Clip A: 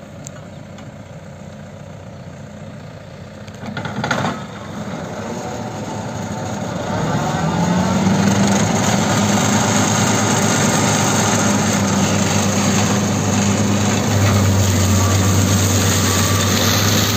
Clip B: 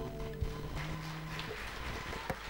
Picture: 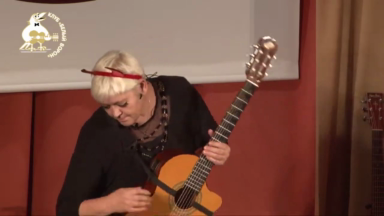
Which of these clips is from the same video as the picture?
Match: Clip B